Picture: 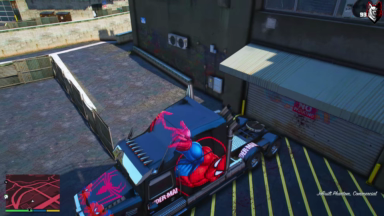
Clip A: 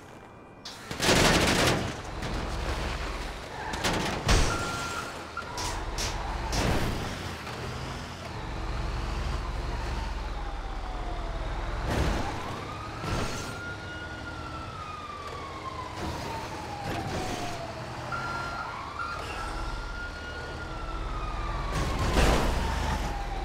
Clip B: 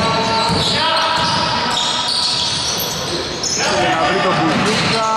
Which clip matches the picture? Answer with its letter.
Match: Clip A